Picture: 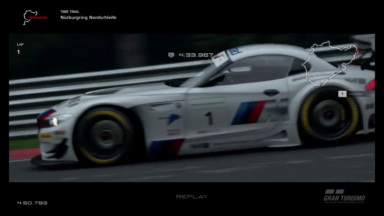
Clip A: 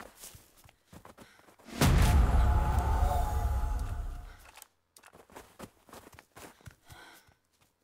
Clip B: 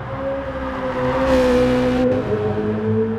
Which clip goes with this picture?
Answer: B